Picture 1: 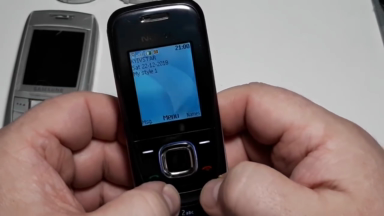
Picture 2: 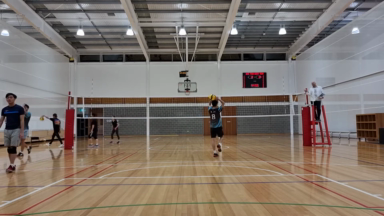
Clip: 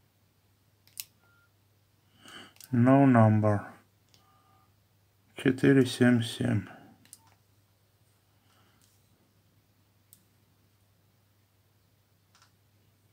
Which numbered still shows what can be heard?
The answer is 1